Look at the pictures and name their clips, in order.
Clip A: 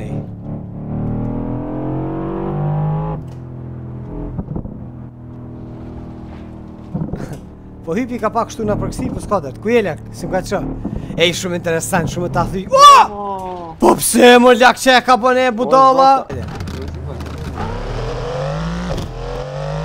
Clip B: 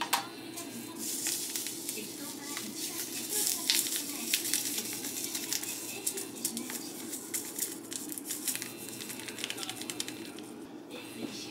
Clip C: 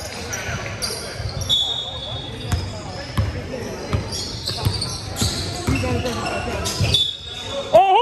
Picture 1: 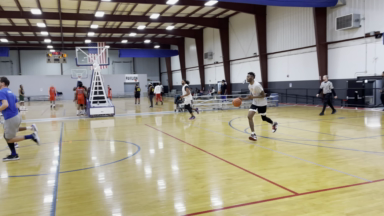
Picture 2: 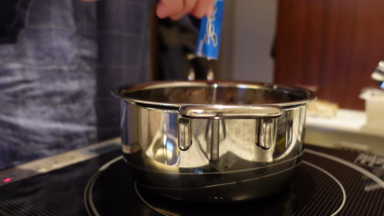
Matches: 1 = C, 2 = B